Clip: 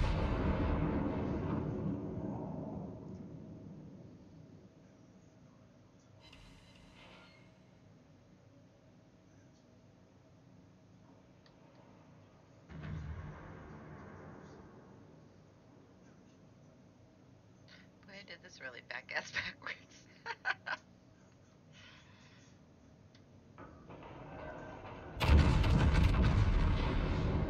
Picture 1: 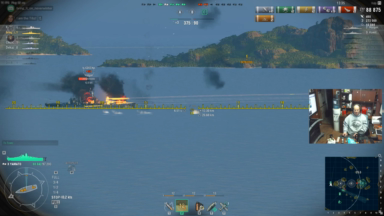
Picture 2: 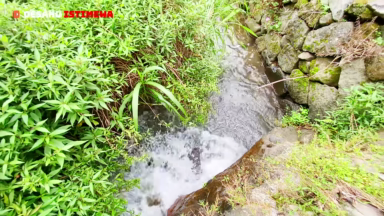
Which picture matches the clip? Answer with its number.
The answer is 1